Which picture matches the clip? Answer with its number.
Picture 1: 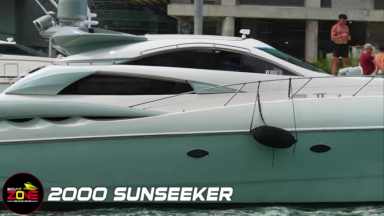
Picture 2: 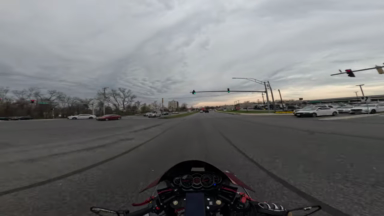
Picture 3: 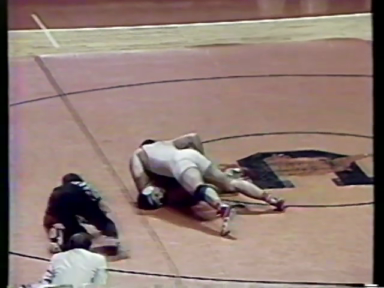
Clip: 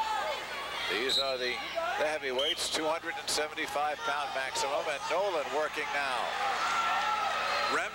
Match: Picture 3